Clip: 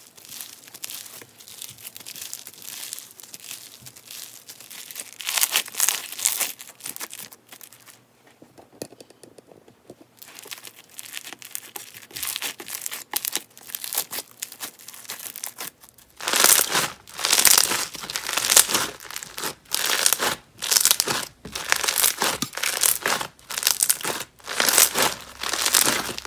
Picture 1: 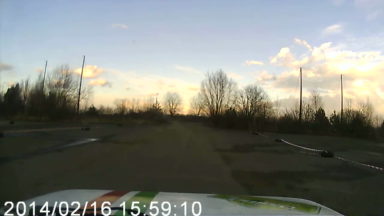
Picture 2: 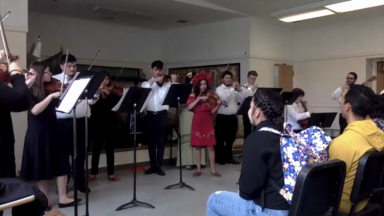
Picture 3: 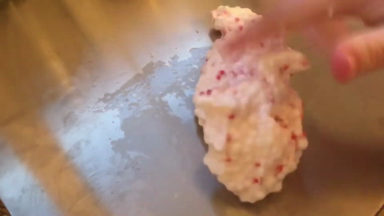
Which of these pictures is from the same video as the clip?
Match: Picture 3